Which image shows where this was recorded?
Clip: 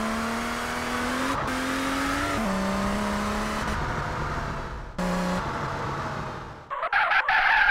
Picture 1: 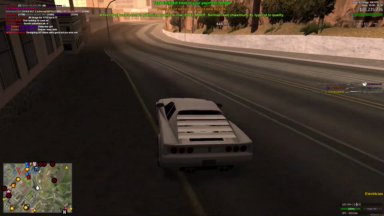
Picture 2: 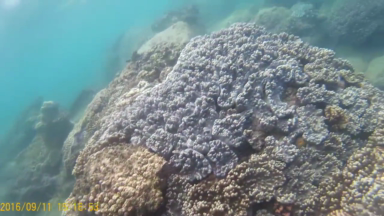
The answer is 1